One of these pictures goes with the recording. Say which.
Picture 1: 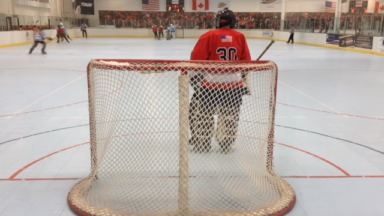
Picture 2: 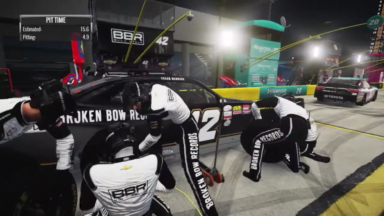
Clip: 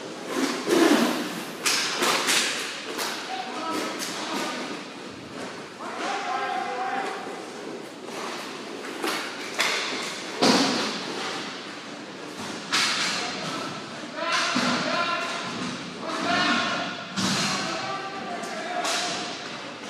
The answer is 1